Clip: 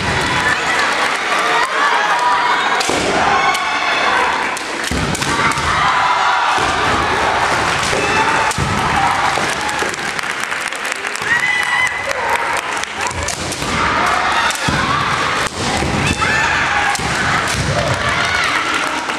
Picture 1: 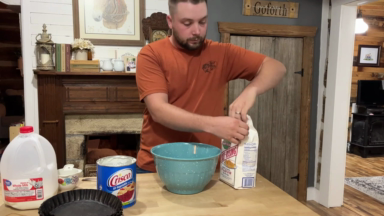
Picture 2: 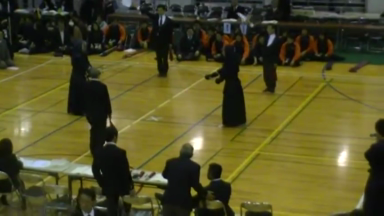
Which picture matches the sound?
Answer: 2